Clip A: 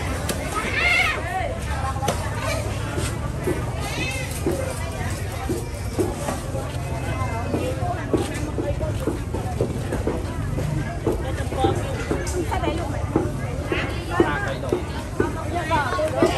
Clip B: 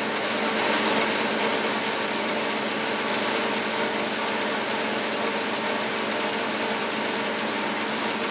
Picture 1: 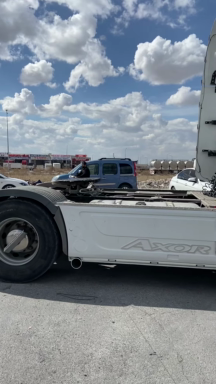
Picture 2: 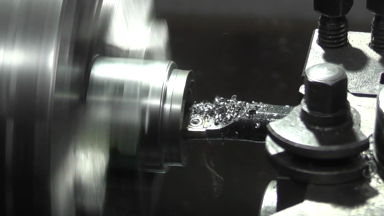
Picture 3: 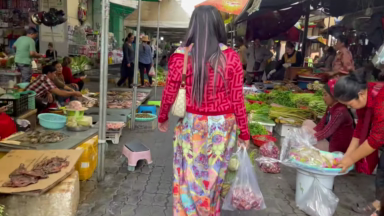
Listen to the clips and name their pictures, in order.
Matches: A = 3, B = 2